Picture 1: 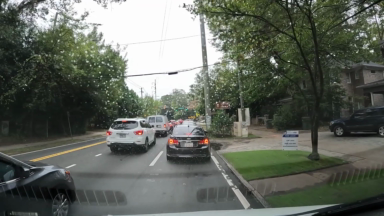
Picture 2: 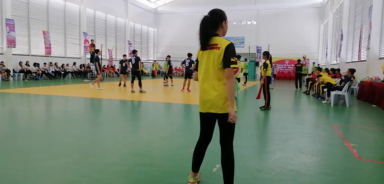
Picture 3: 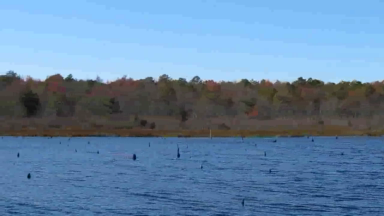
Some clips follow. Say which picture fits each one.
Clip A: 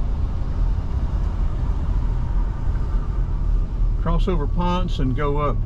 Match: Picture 1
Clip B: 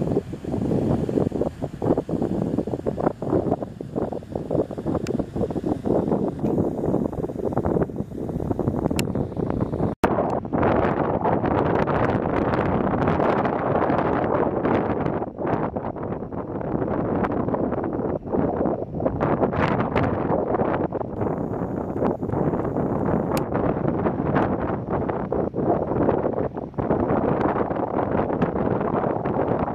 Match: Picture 3